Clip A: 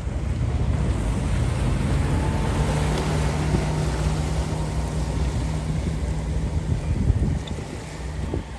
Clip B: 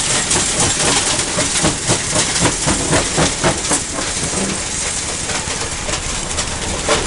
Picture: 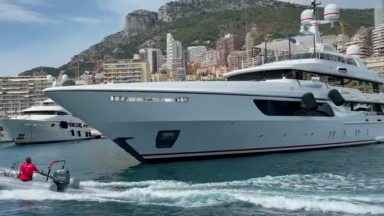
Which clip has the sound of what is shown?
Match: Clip A